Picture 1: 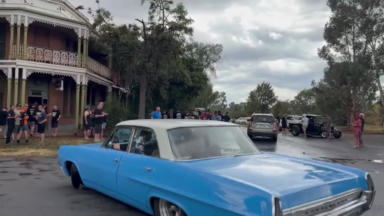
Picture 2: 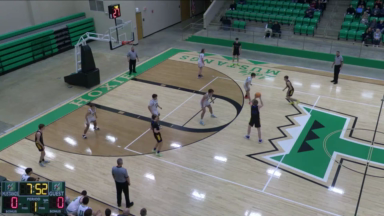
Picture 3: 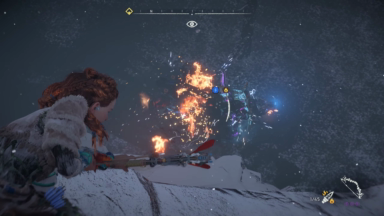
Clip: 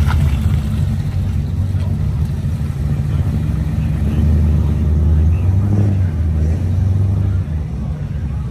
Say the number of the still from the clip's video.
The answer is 1